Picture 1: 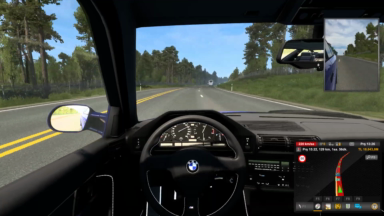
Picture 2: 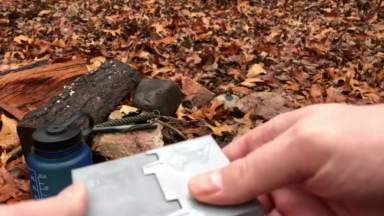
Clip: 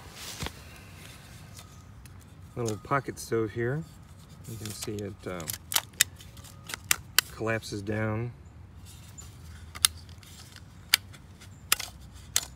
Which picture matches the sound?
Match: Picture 2